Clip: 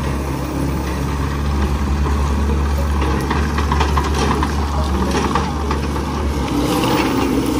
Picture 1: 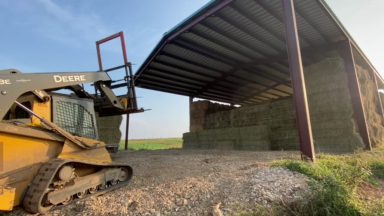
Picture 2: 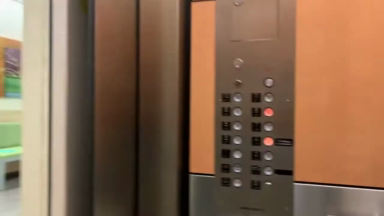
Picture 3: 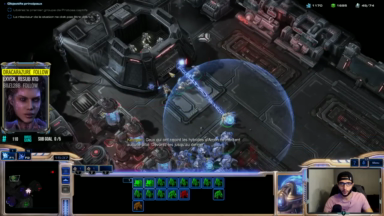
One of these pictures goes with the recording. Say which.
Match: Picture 1